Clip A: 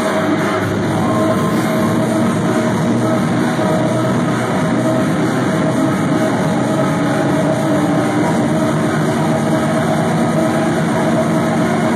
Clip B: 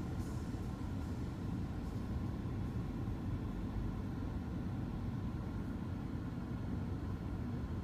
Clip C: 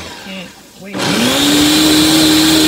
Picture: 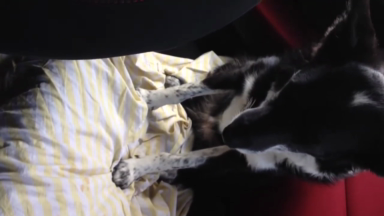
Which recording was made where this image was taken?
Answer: B